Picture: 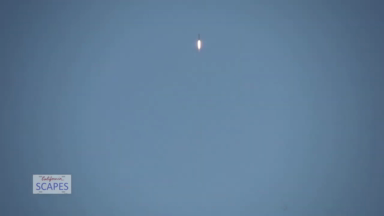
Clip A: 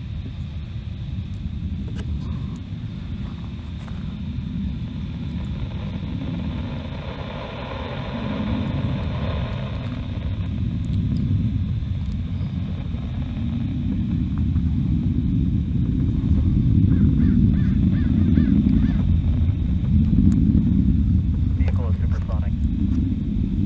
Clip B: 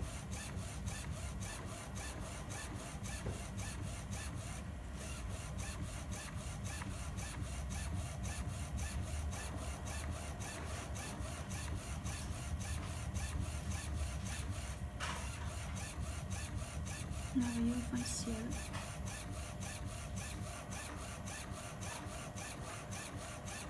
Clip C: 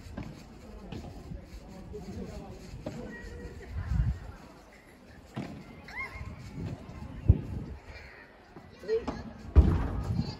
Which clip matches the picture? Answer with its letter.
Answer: A